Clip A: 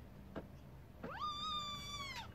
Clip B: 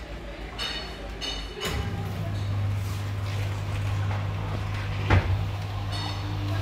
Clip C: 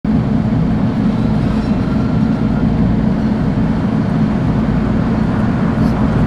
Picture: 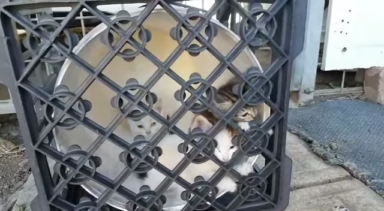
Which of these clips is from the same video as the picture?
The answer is A